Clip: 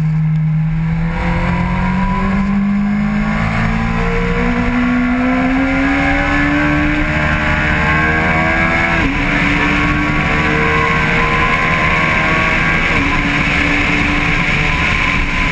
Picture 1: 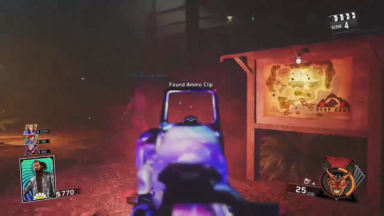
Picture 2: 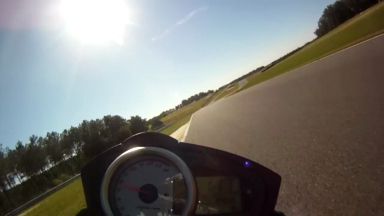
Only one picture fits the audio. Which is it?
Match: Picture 2